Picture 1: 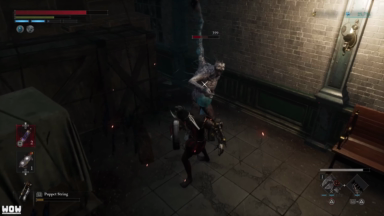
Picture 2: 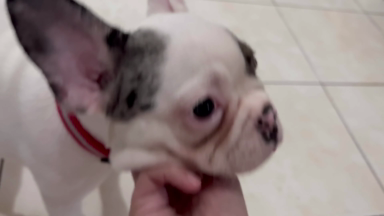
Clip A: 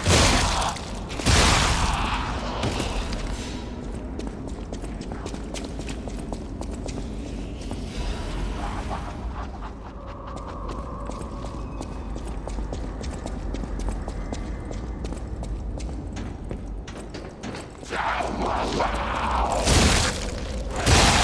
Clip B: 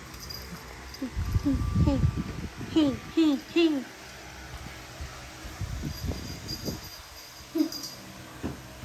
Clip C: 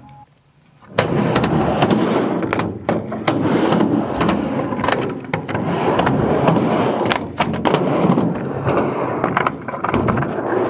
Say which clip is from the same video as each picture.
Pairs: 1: A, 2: B